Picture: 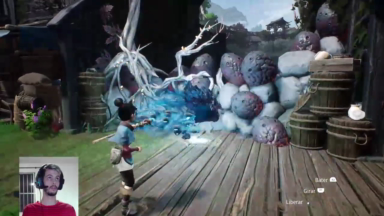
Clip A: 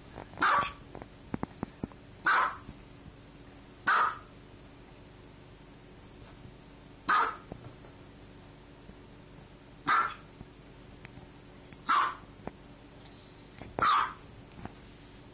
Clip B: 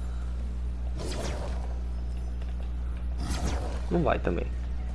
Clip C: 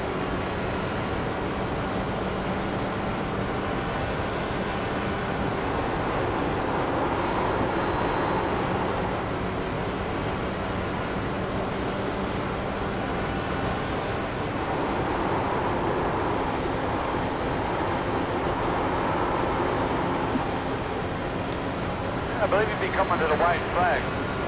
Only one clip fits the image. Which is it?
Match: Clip B